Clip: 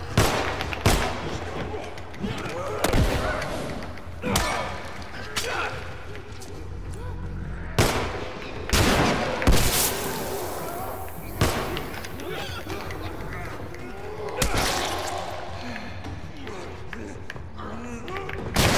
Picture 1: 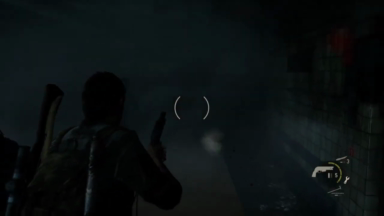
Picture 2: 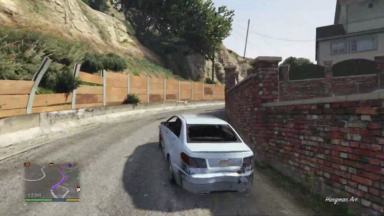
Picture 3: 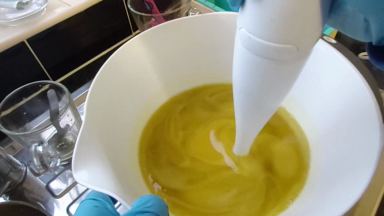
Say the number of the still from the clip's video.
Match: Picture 1